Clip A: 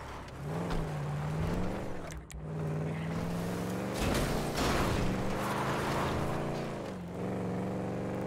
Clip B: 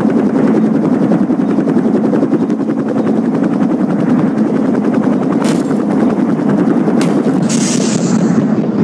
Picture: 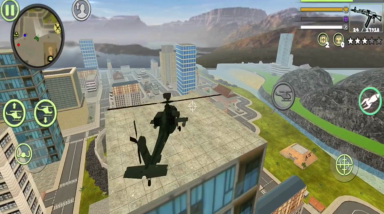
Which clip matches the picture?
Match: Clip B